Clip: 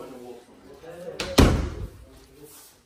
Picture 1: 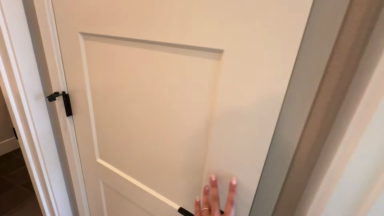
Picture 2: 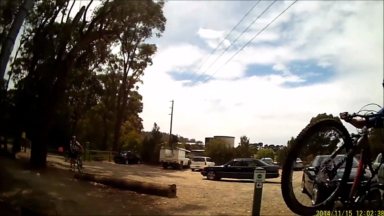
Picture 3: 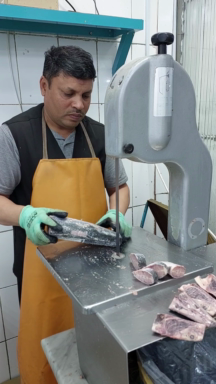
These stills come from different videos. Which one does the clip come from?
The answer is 1